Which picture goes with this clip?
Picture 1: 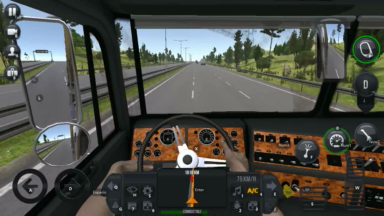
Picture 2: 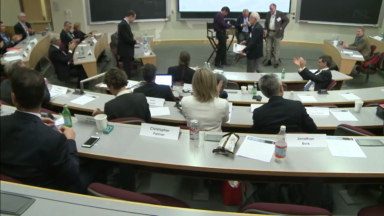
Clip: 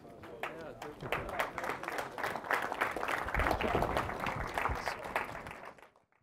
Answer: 2